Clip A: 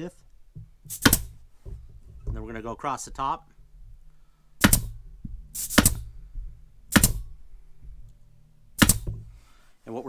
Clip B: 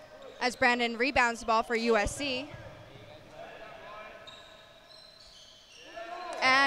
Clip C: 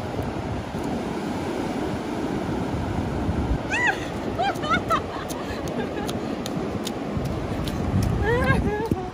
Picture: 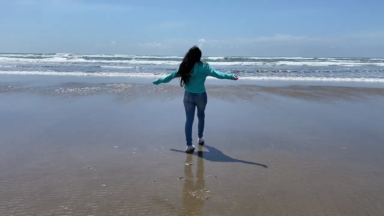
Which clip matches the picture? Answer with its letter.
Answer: C